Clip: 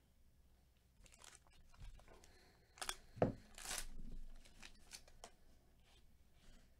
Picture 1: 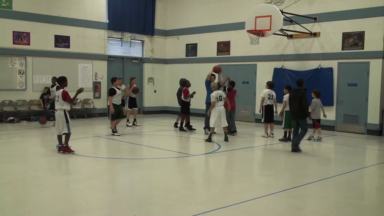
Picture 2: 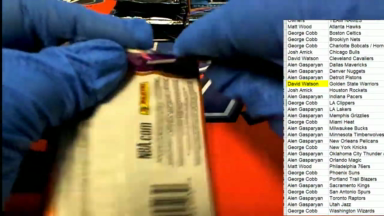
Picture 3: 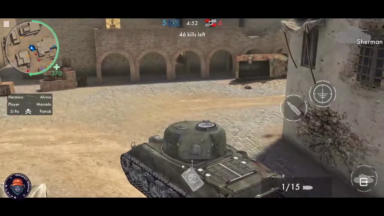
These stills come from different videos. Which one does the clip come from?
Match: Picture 2